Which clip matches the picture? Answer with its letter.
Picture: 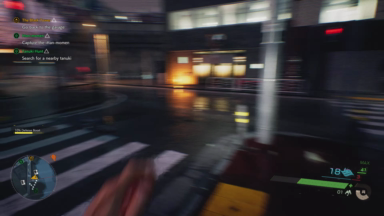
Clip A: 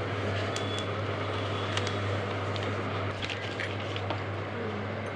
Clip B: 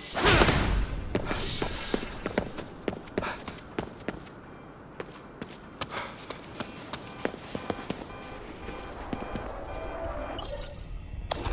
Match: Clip B